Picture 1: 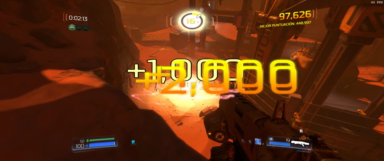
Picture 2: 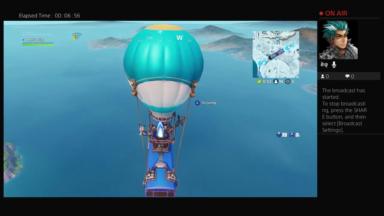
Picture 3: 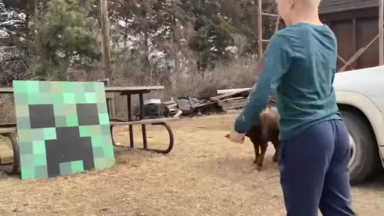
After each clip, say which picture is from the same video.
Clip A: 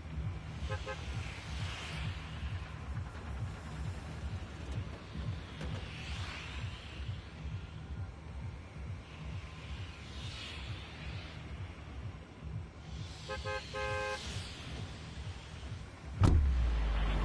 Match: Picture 2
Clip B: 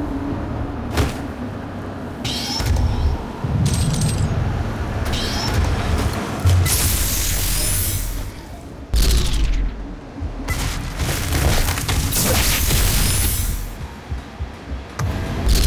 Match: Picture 1